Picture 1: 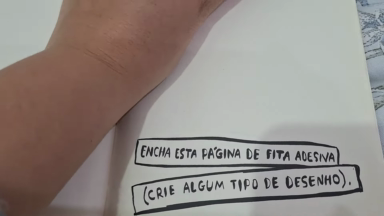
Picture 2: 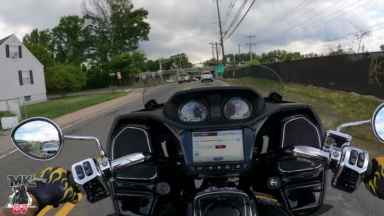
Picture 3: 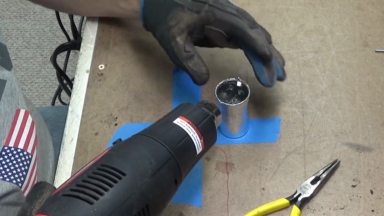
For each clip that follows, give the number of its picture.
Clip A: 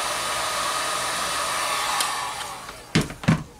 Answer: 3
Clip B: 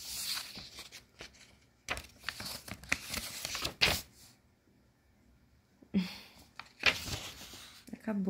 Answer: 1